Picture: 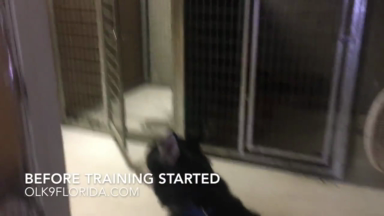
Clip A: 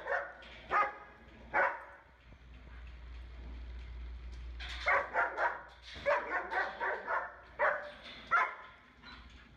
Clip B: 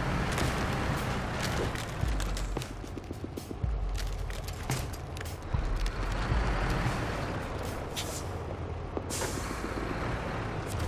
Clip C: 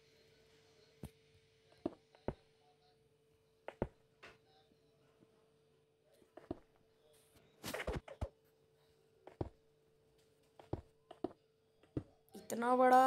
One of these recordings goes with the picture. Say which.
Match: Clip A